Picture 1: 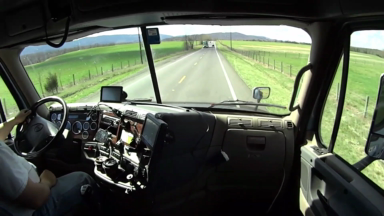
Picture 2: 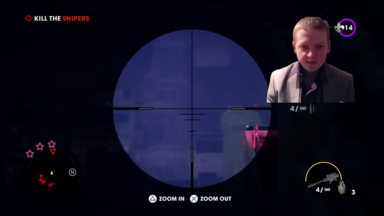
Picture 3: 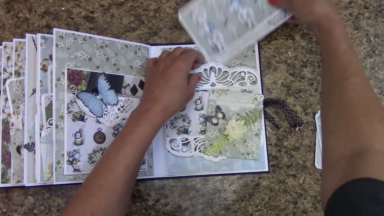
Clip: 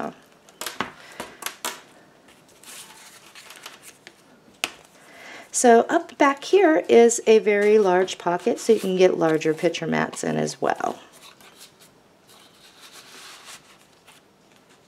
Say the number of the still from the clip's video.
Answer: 3